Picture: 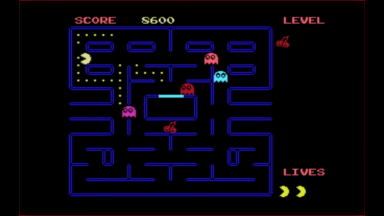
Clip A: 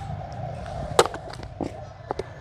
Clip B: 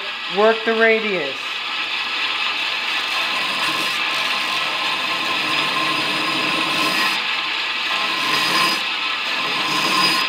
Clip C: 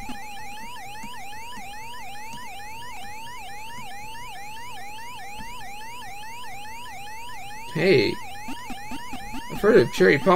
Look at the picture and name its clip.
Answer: C